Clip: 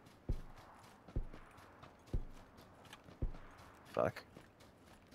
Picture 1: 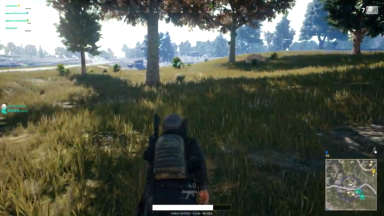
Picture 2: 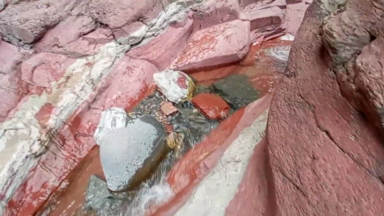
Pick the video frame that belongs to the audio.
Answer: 1